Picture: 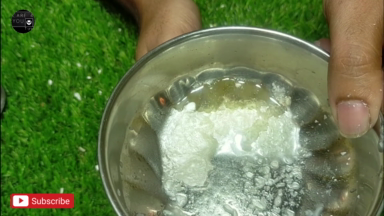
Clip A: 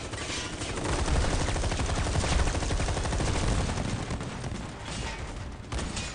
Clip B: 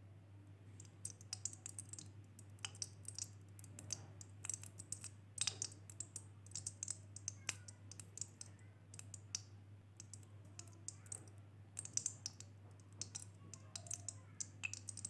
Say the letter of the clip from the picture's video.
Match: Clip B